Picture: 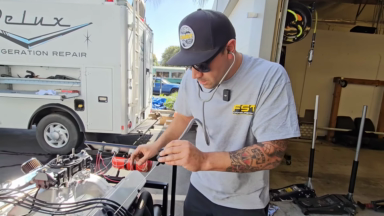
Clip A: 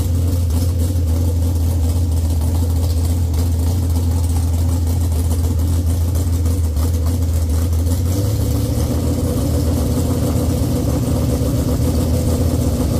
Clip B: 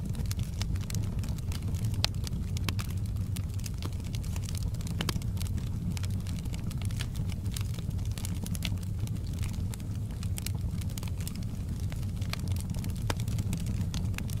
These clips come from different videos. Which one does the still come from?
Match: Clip A